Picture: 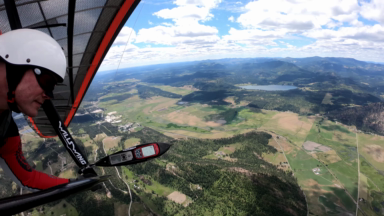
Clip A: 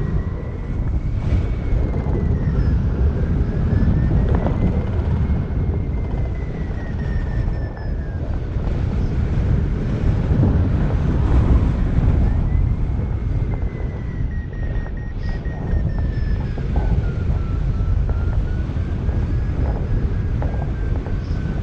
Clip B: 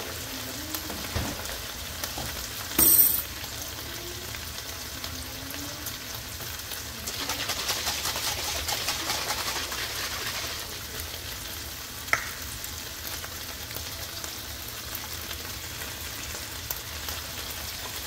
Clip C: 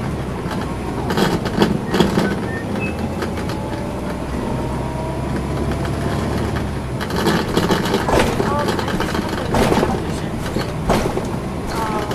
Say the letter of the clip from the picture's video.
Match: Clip A